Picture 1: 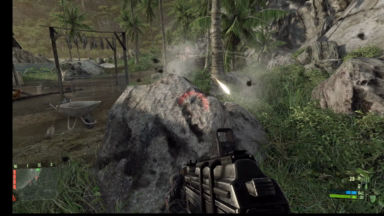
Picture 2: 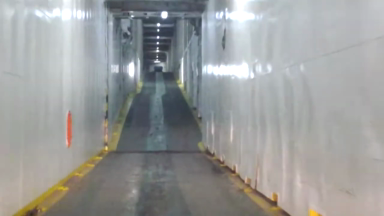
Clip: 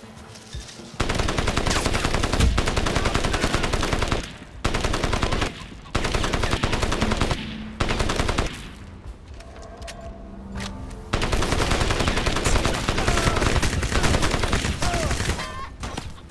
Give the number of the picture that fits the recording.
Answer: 1